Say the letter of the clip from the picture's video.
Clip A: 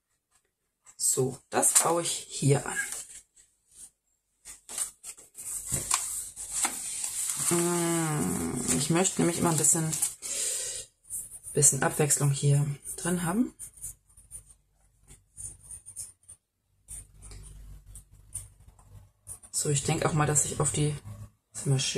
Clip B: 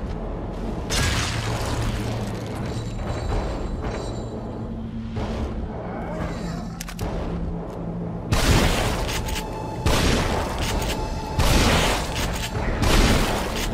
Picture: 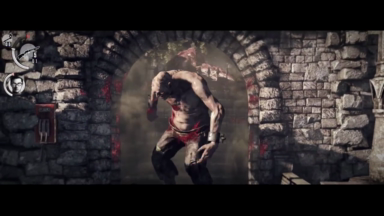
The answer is B